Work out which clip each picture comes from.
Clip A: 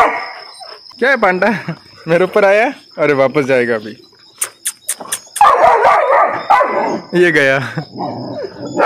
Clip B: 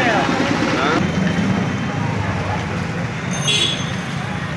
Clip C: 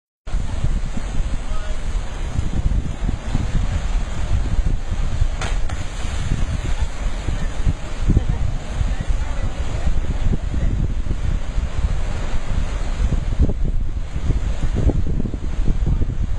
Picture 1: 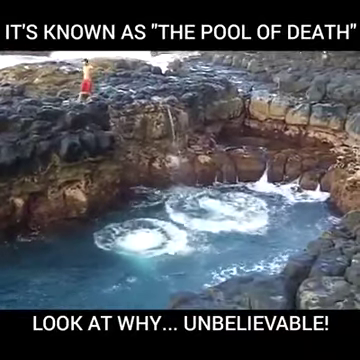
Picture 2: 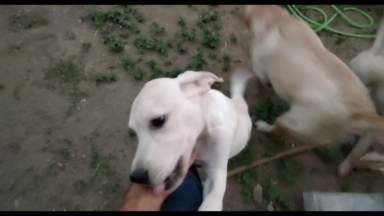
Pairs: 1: C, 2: A